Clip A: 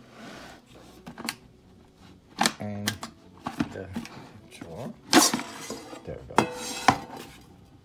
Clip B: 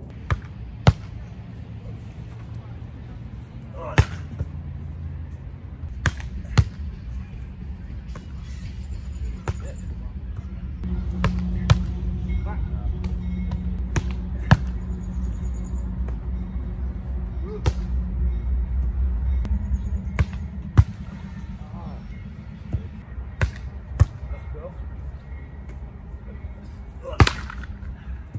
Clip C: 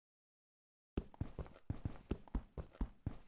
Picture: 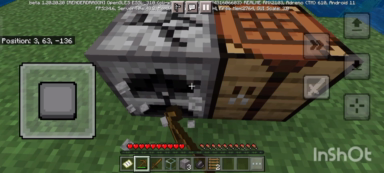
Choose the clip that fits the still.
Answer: C